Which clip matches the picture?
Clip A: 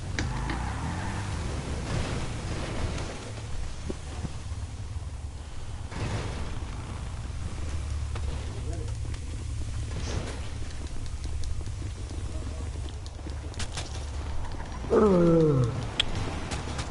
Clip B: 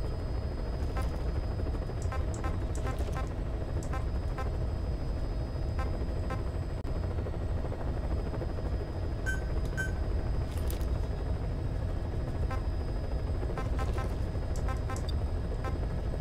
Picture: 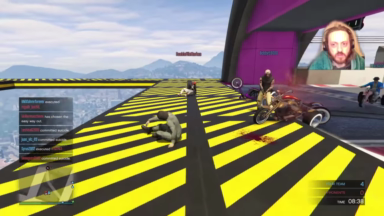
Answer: A